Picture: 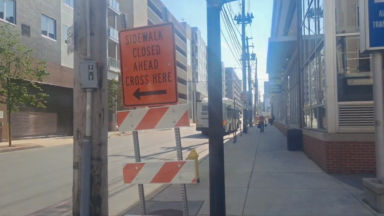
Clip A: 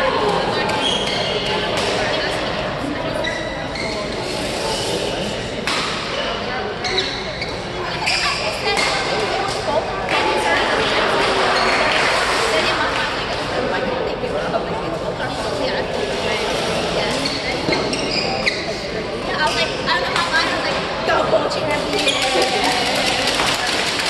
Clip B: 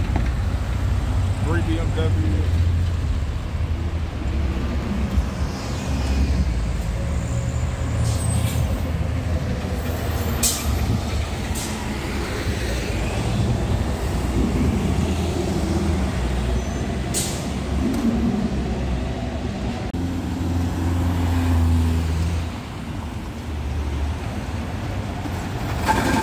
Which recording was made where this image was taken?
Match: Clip B